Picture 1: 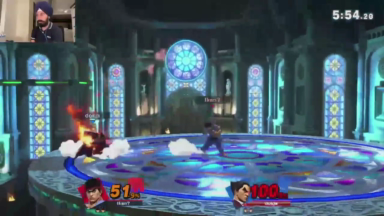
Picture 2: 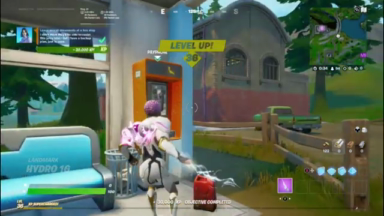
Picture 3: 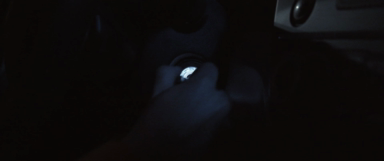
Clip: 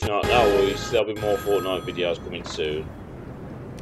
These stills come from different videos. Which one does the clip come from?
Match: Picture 2